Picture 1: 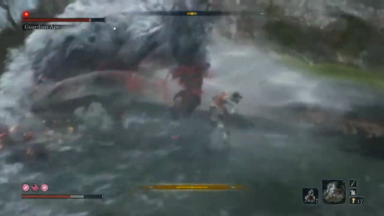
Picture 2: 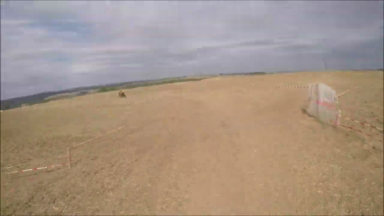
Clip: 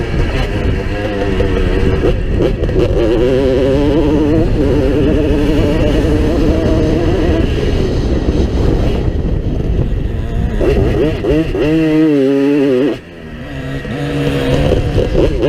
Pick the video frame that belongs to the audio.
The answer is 2